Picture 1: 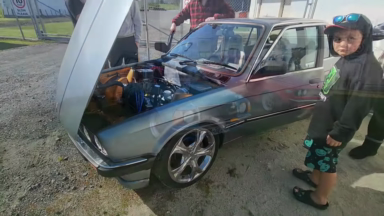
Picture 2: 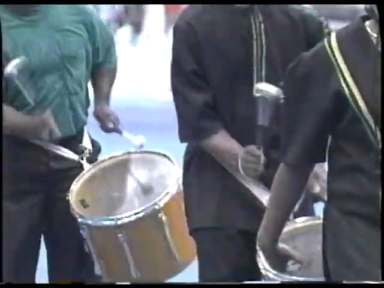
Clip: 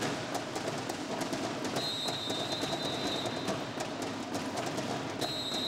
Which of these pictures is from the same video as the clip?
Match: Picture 2